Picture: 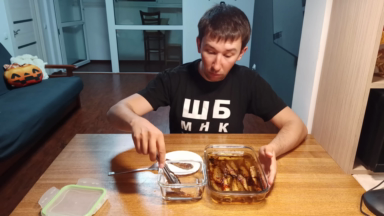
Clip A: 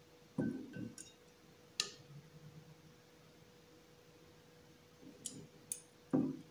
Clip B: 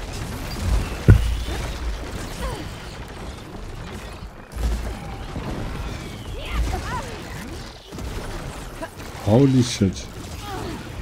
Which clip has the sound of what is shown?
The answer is A